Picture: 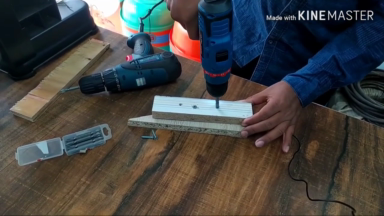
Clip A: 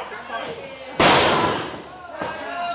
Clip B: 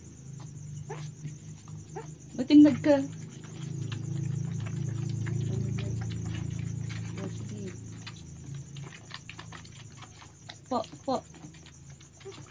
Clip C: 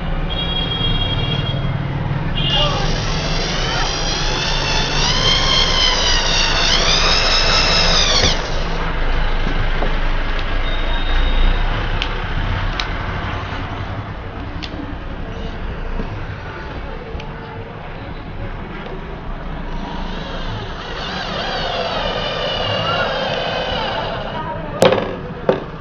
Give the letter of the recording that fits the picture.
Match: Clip C